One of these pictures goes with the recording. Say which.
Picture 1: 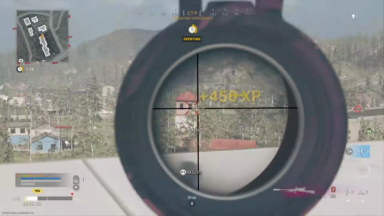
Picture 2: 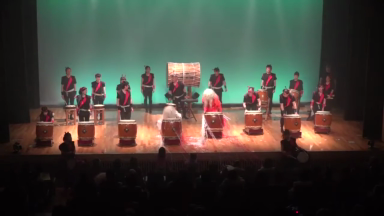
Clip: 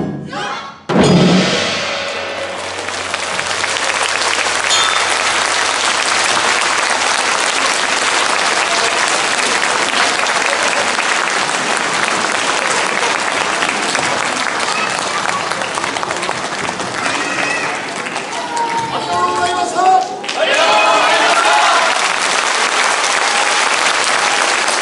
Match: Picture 2